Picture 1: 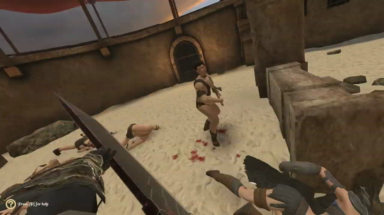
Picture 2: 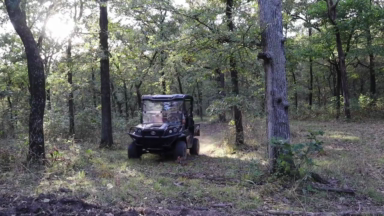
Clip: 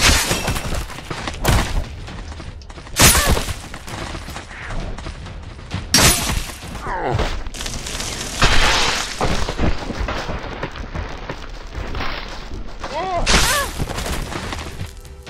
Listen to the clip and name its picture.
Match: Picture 1